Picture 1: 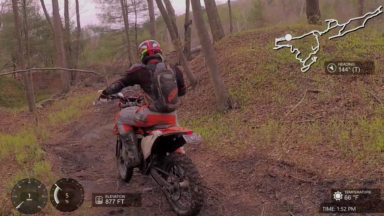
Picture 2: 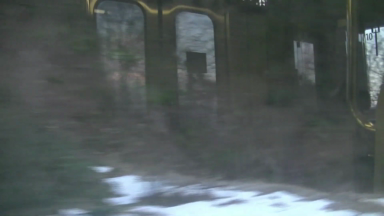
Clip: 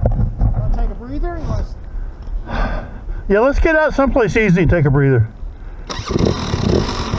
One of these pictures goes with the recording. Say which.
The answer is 1